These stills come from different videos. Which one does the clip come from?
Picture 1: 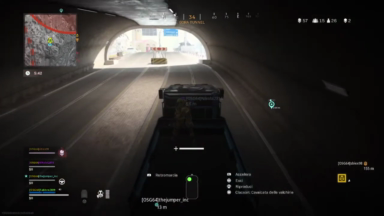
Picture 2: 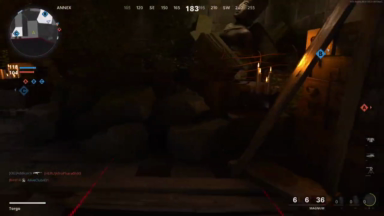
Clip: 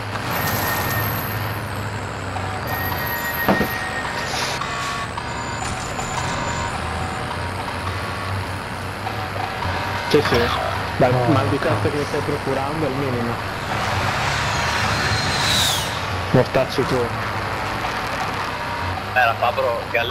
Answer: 1